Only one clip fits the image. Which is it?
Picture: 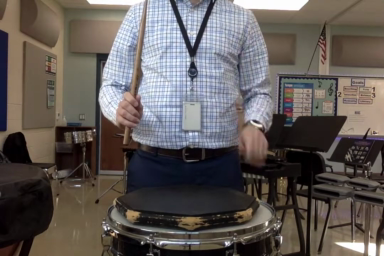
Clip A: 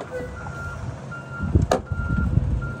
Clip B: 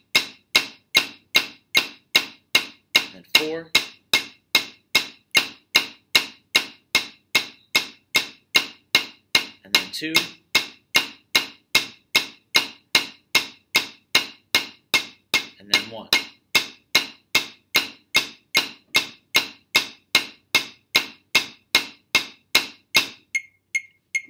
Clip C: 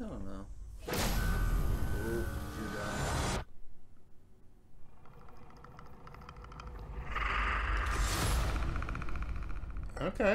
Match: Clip B